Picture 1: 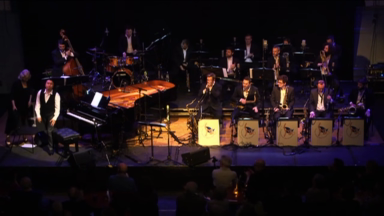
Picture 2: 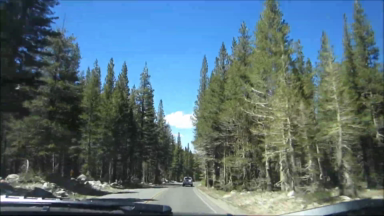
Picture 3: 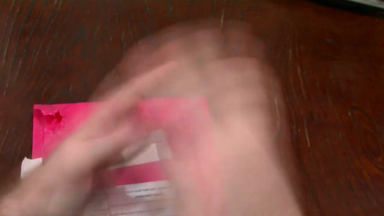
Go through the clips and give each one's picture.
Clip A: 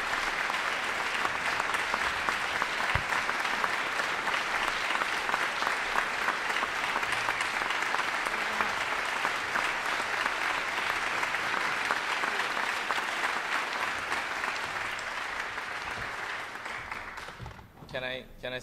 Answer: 1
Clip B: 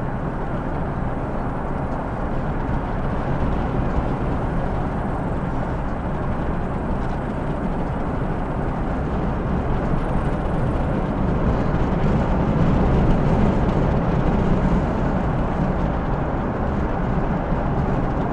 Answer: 2